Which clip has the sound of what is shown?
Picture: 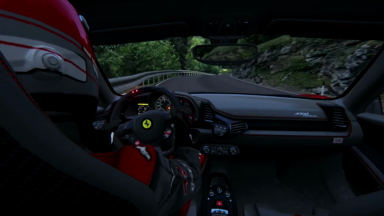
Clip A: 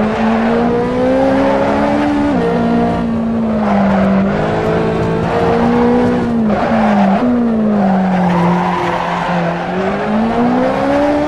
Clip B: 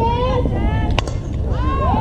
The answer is A